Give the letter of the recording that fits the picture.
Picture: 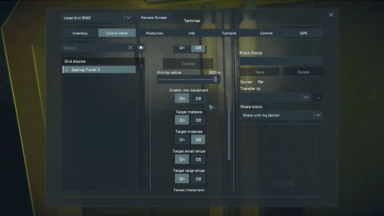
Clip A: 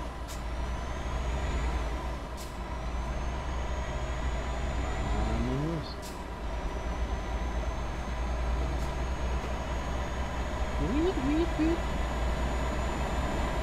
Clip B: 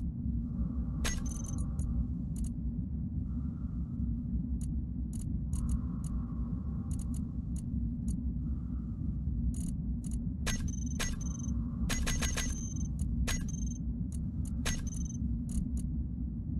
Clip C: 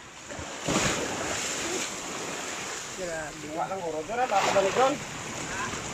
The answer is B